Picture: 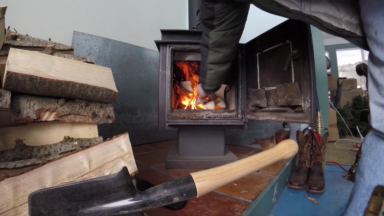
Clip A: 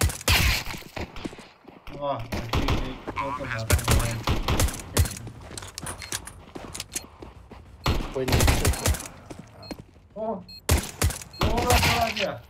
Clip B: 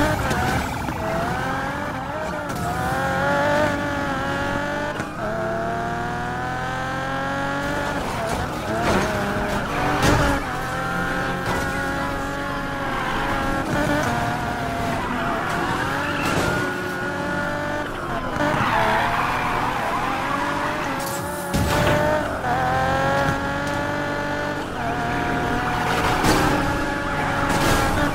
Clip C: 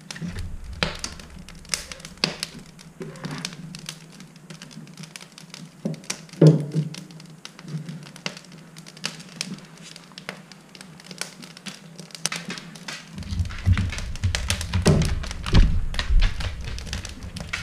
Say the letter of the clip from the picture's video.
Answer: C